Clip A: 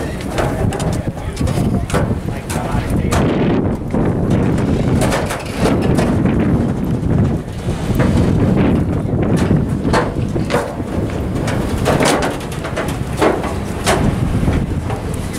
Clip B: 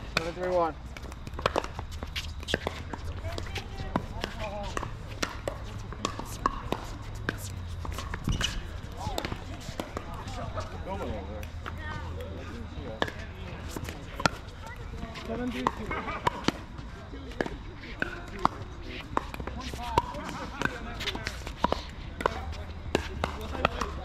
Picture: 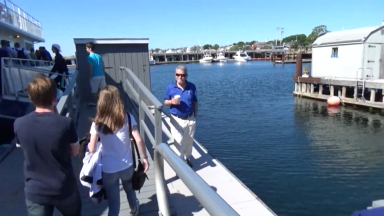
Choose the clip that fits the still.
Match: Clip A